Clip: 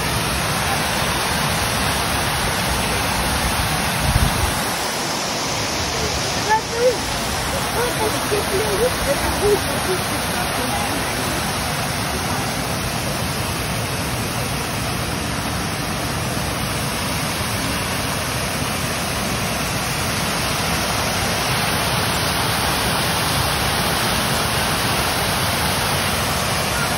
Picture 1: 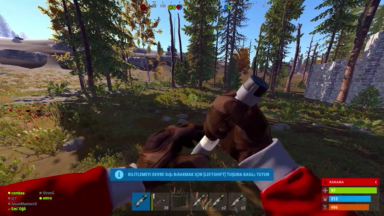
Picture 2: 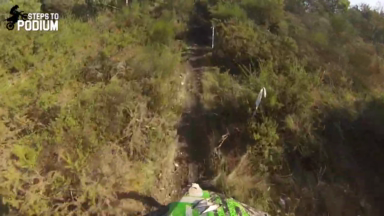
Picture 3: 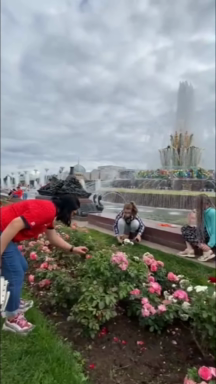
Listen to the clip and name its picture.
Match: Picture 3